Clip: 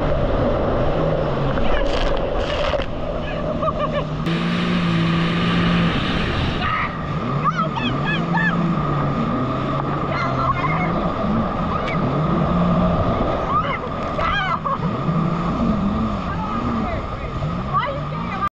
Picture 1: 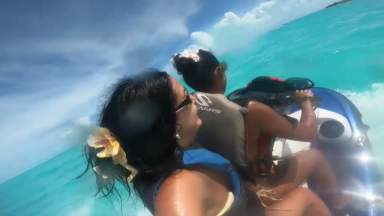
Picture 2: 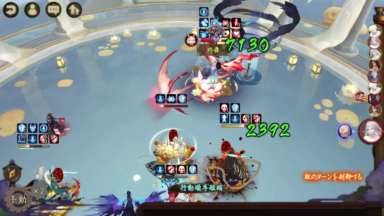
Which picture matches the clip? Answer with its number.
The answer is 1